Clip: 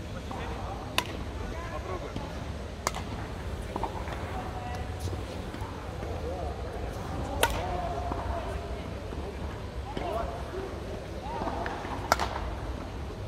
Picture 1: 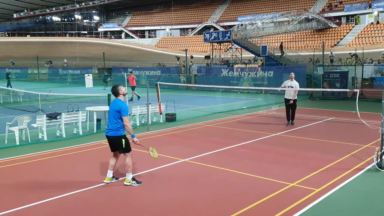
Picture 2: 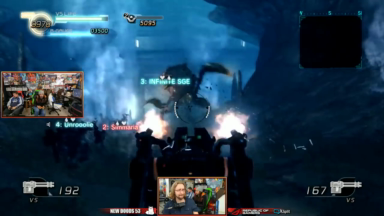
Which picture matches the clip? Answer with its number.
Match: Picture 1